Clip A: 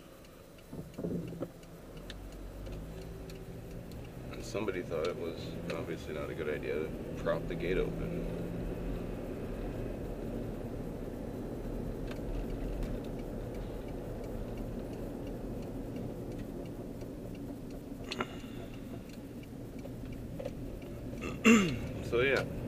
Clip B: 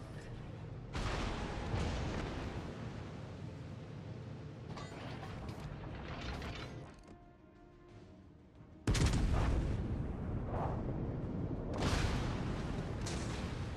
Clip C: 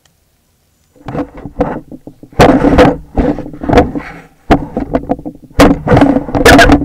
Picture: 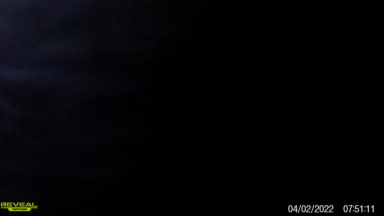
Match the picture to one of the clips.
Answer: C